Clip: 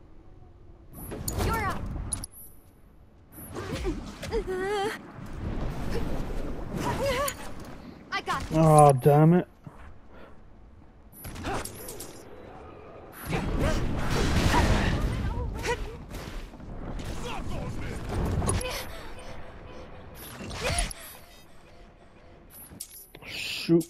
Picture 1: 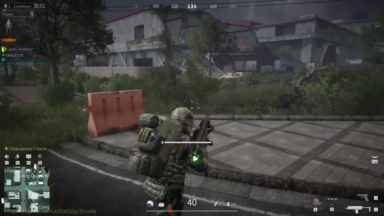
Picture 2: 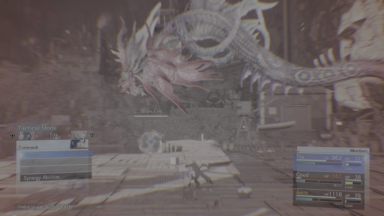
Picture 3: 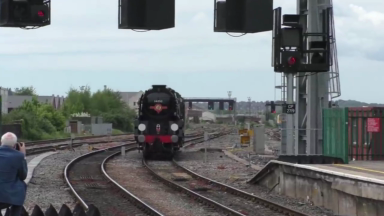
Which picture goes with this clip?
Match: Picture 2